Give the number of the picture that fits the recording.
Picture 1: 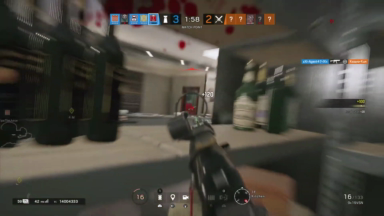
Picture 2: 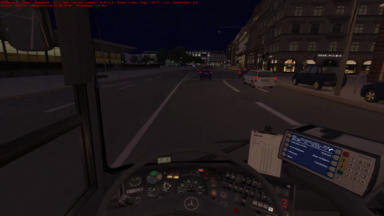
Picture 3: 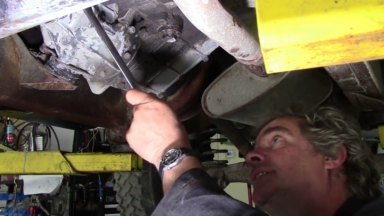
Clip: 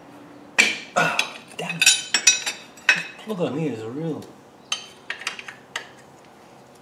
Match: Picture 3